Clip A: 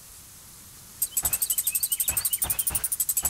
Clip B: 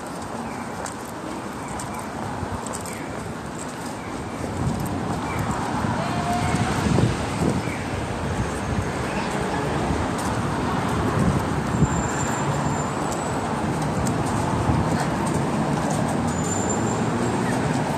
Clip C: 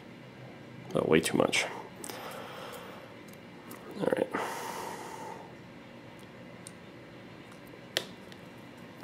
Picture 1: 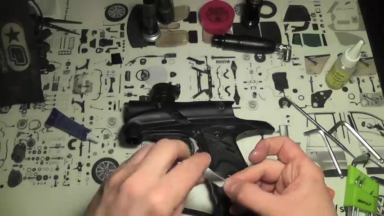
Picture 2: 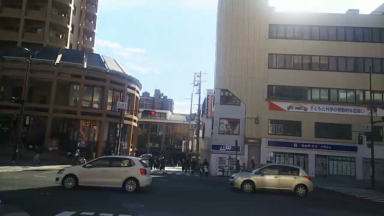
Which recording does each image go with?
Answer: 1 C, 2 B